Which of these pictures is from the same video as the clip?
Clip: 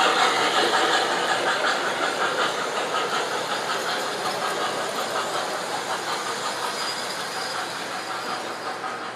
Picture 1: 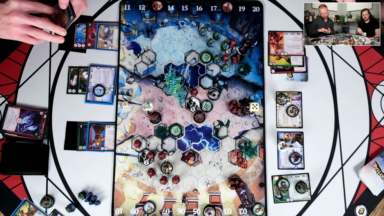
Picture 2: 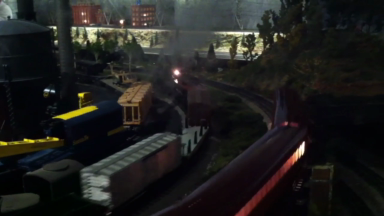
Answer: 2